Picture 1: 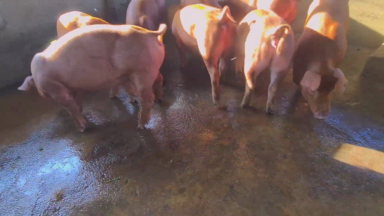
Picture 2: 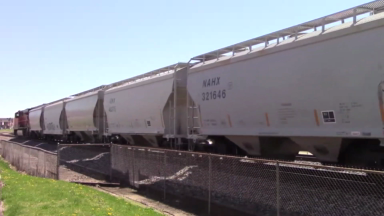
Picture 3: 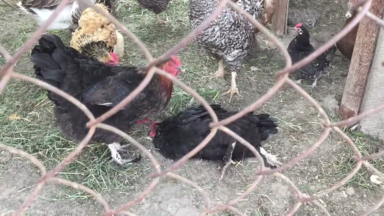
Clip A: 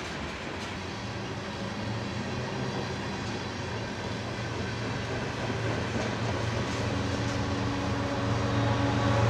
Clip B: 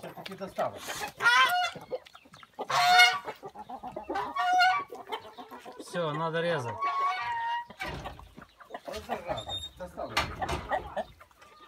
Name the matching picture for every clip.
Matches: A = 2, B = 3